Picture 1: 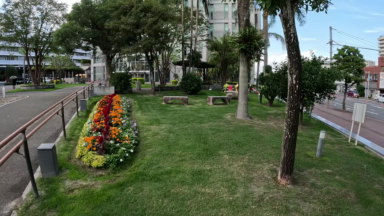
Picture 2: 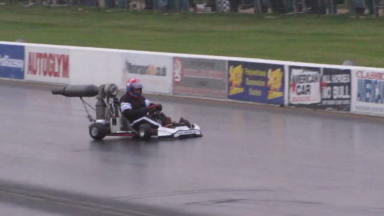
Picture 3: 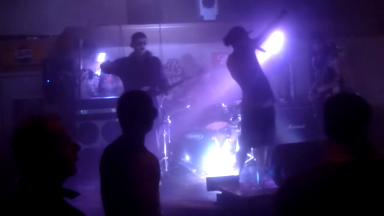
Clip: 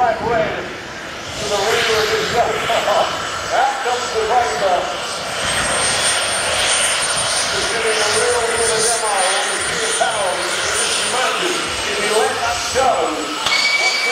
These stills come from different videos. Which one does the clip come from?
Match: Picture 2